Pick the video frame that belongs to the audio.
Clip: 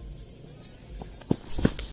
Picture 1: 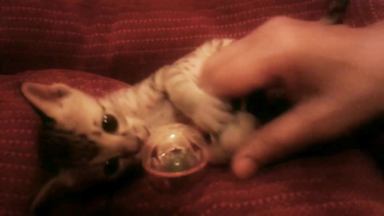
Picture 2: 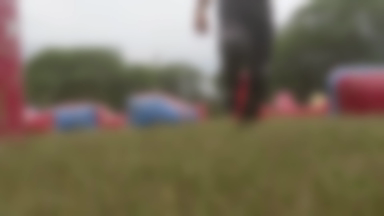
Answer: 2